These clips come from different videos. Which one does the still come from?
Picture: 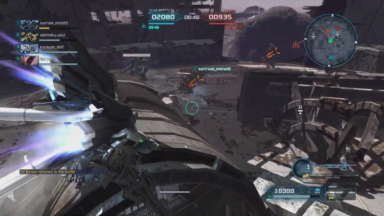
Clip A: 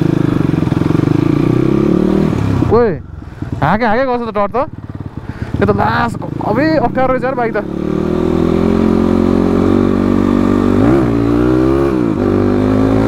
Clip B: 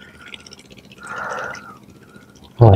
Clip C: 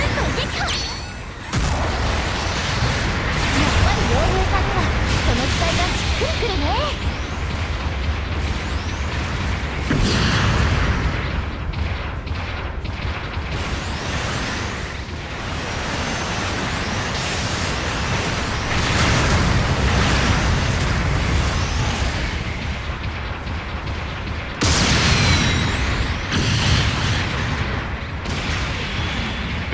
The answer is C